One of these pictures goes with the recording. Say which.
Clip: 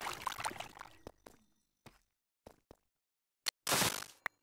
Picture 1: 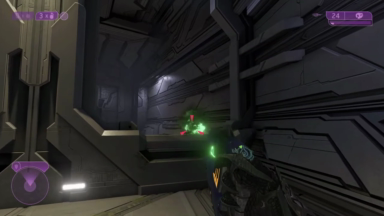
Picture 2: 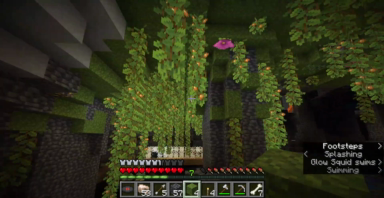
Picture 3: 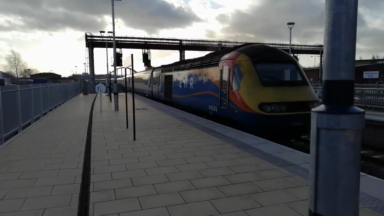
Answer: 2